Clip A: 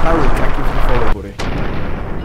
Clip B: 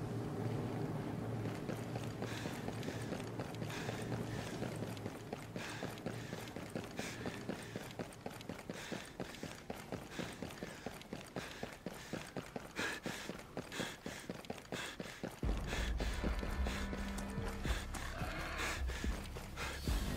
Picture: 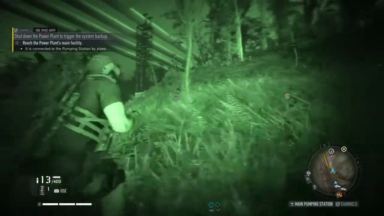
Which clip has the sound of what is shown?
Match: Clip B